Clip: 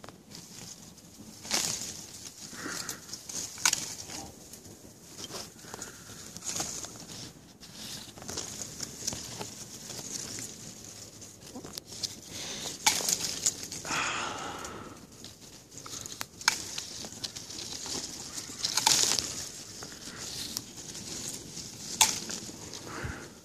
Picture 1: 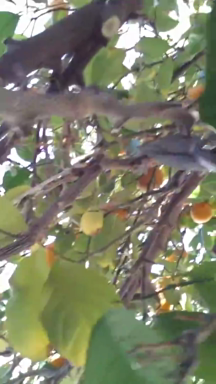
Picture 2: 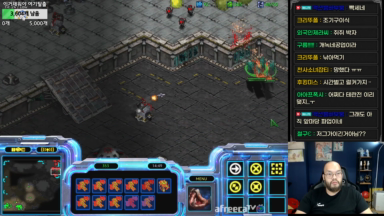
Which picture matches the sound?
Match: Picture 1